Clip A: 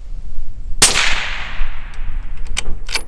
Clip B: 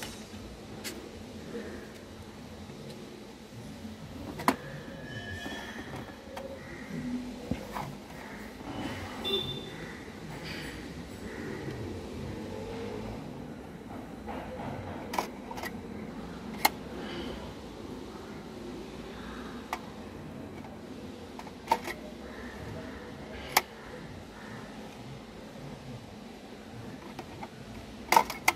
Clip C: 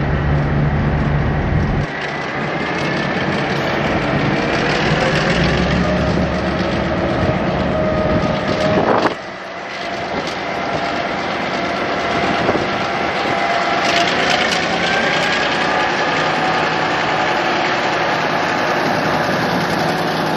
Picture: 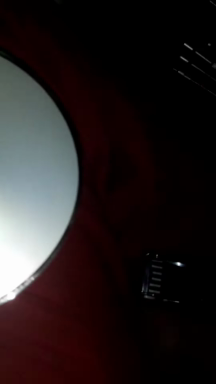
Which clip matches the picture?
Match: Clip B